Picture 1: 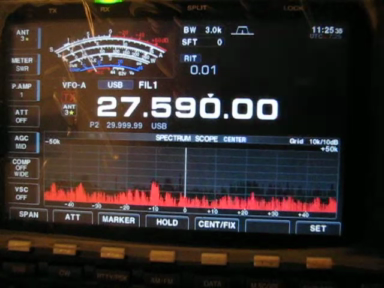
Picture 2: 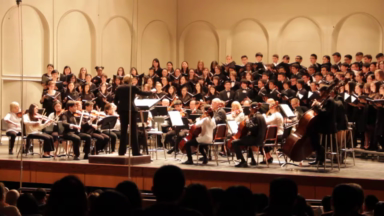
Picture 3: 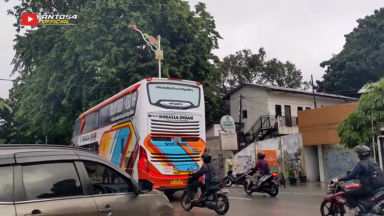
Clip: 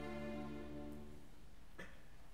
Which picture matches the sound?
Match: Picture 2